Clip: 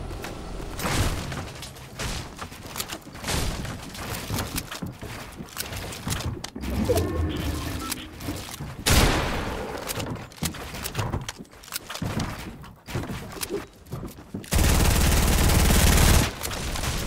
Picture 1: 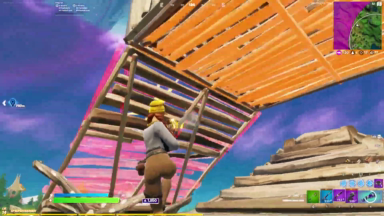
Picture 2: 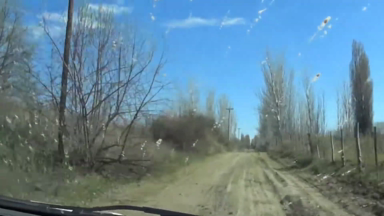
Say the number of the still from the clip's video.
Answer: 1